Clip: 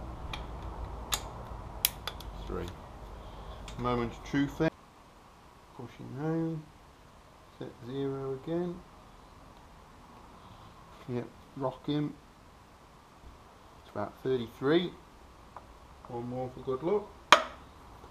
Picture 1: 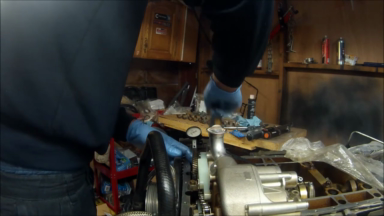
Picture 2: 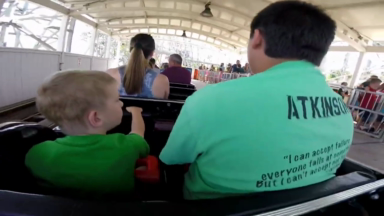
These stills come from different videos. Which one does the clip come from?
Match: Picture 1